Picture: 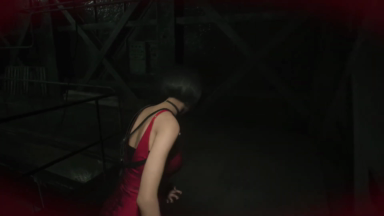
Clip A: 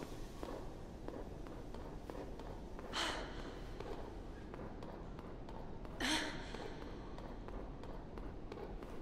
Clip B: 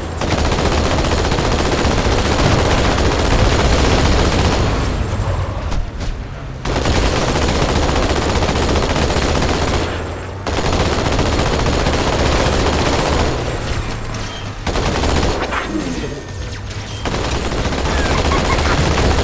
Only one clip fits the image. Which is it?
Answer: A